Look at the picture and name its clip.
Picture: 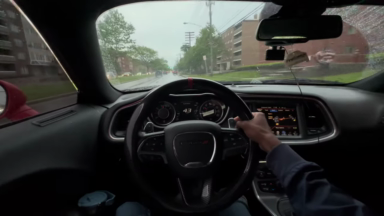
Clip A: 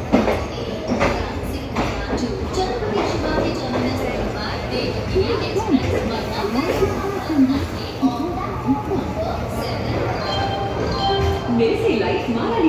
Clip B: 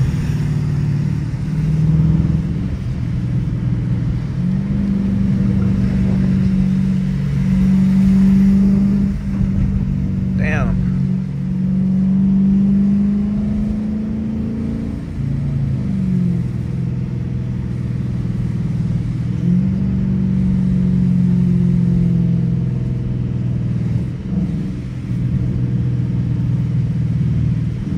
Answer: B